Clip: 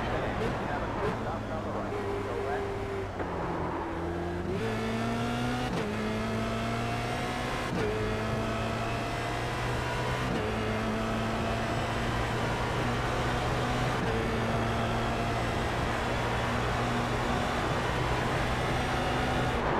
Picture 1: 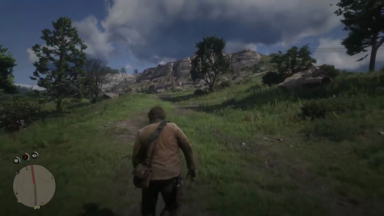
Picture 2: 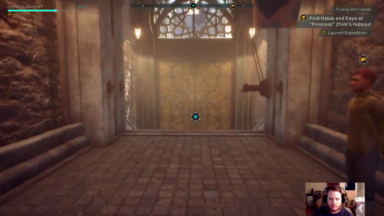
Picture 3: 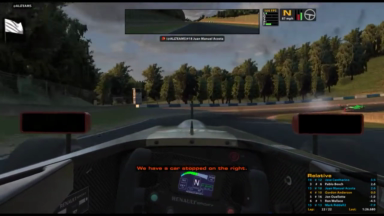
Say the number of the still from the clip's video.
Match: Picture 3